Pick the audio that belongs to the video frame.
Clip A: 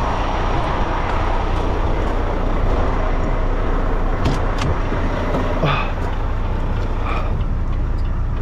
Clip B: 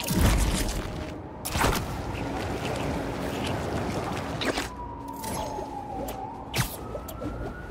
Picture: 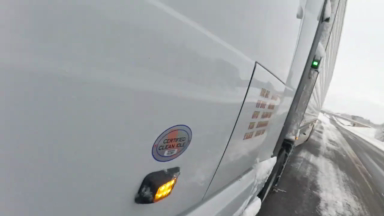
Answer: A